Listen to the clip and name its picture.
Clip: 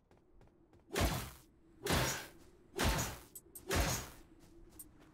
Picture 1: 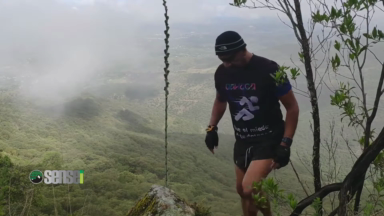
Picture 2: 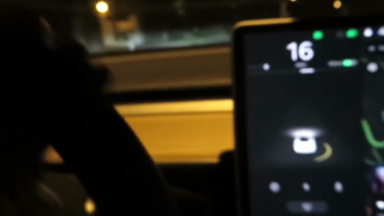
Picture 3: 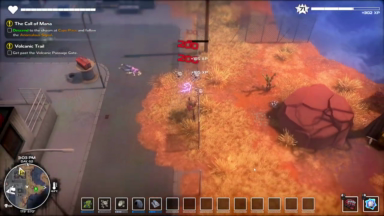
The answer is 3